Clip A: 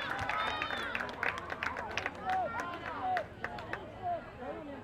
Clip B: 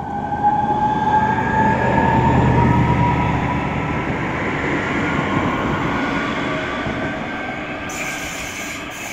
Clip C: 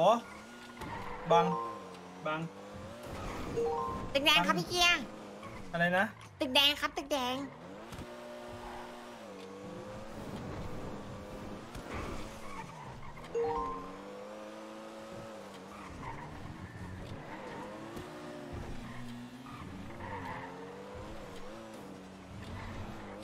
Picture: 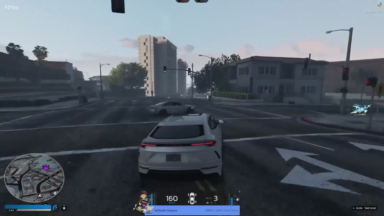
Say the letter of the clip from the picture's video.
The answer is C